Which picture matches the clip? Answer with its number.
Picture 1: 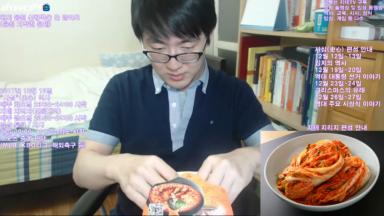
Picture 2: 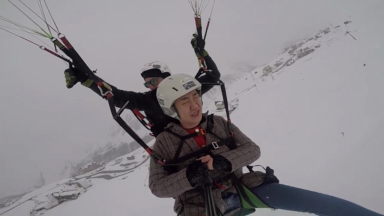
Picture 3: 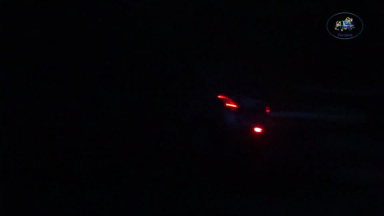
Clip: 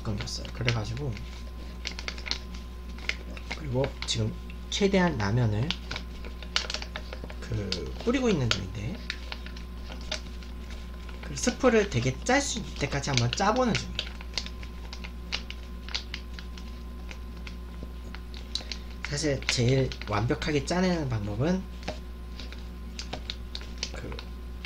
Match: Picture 1